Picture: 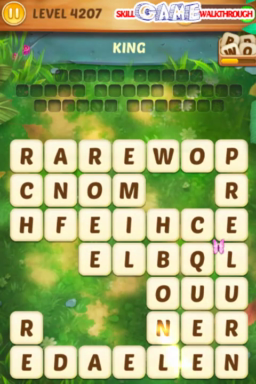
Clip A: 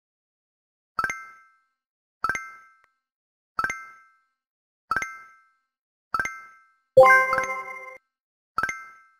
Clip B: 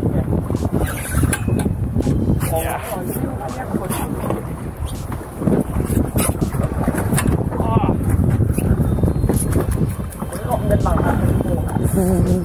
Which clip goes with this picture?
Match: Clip A